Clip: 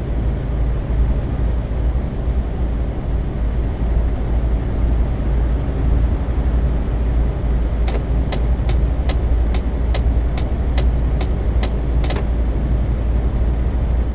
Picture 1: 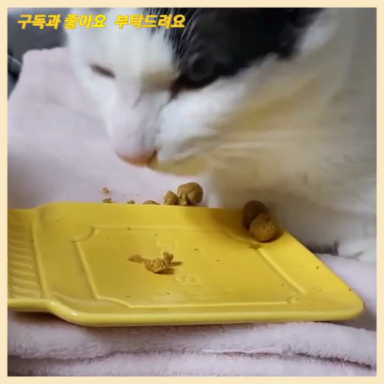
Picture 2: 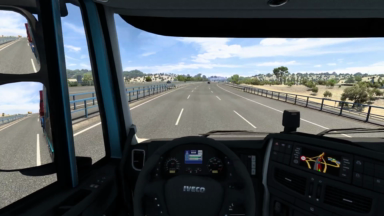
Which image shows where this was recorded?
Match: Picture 2